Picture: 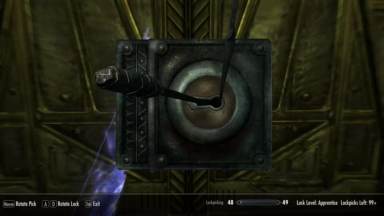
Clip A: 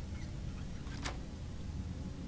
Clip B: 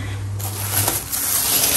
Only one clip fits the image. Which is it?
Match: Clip A